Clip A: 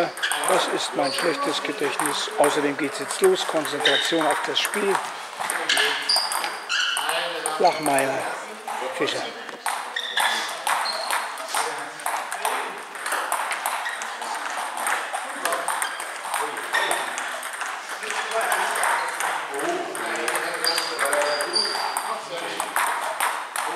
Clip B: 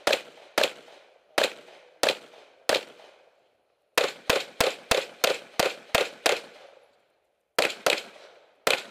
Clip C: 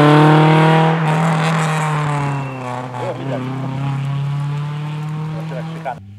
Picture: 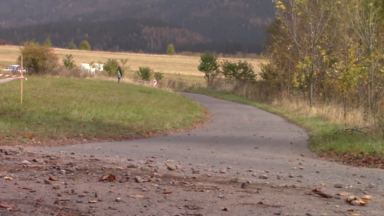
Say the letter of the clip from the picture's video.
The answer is C